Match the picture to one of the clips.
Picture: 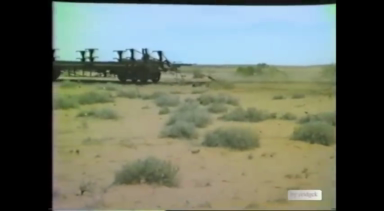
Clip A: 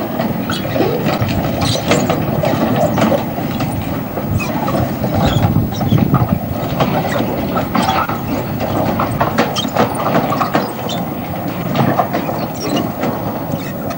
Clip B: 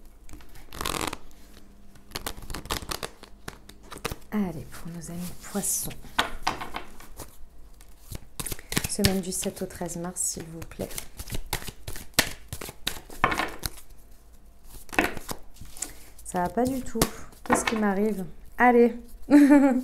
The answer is A